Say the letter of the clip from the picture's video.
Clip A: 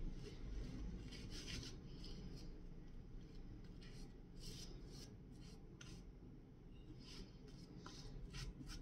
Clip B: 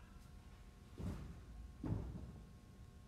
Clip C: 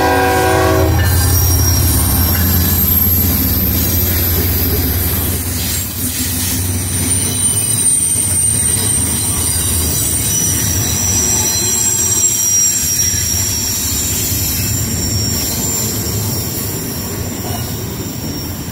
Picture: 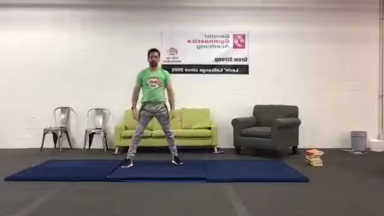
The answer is B